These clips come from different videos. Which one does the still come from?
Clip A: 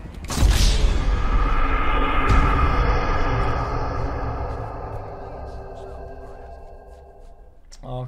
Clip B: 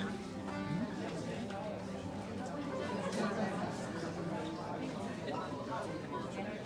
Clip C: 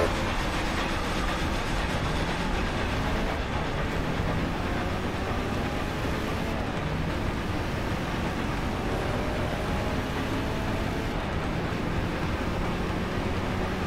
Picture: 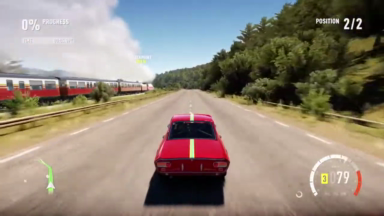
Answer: C